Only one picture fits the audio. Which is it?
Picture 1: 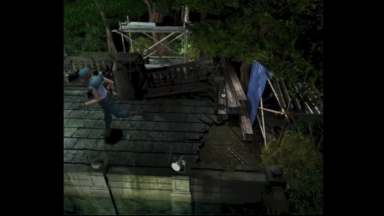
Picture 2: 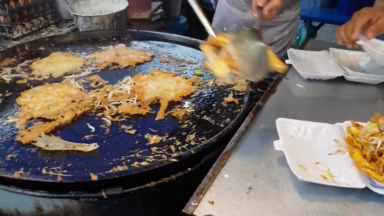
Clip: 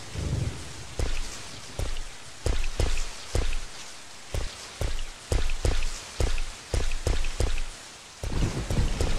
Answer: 1